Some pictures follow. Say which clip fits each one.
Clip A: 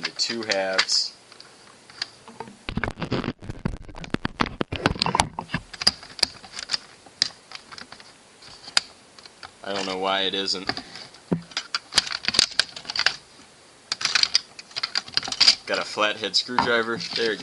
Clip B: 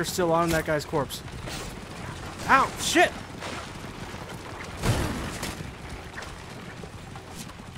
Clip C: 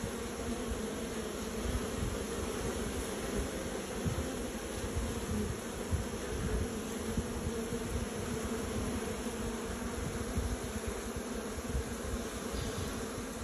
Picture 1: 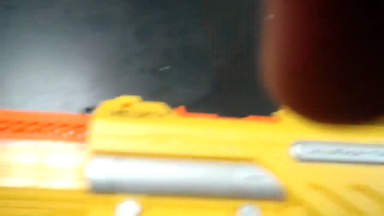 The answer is A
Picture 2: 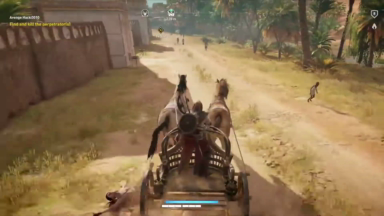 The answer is B